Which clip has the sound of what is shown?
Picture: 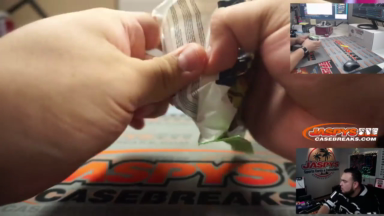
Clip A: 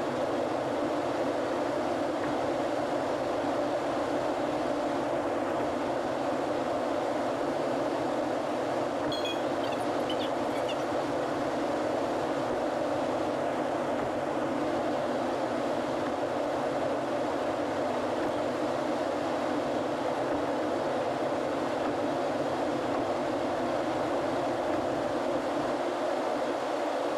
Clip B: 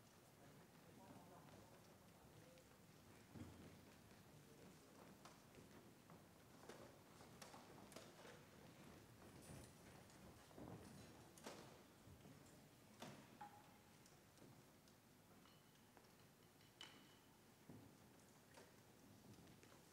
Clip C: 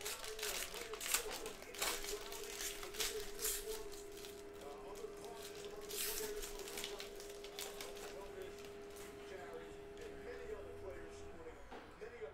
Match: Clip C